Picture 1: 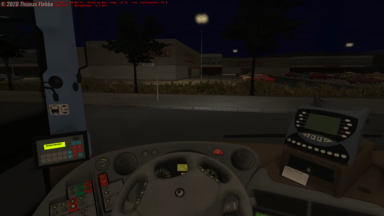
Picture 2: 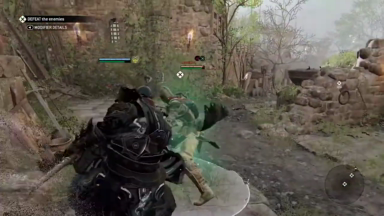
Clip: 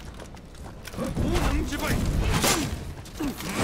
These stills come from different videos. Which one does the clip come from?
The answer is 2